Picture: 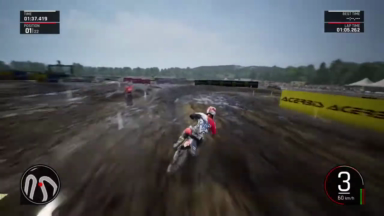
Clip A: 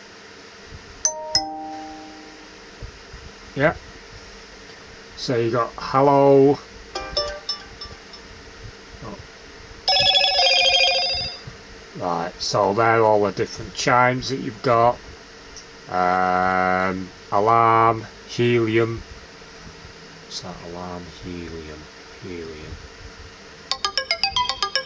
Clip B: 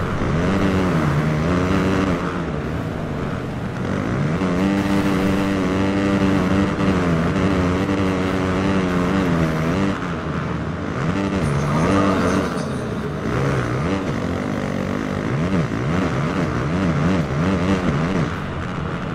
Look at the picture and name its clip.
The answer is B